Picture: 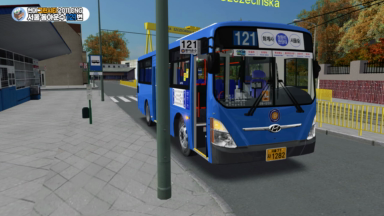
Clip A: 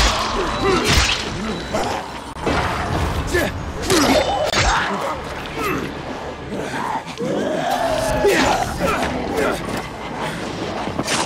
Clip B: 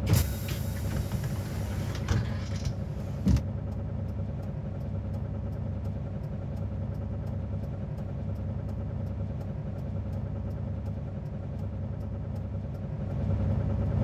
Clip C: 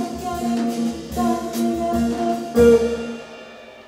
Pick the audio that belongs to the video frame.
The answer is B